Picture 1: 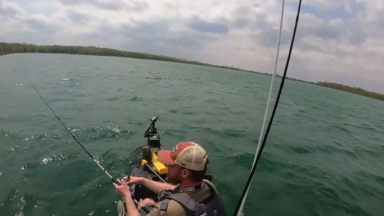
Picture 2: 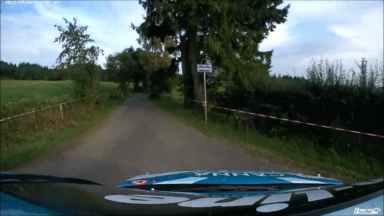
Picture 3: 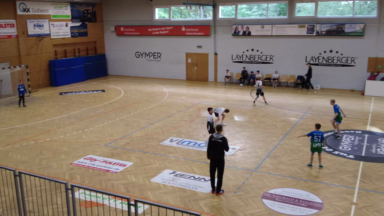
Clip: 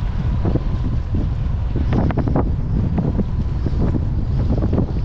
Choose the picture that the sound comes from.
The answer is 1